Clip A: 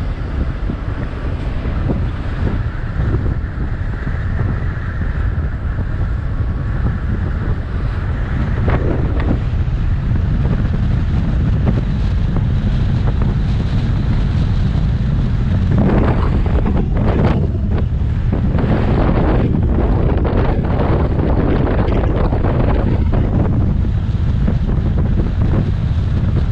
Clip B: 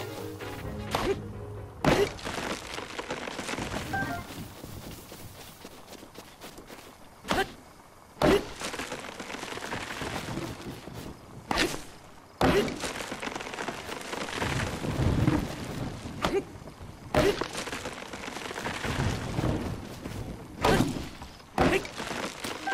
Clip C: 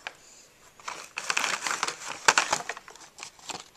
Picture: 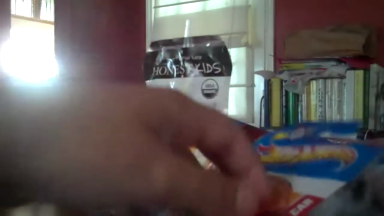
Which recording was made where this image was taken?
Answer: C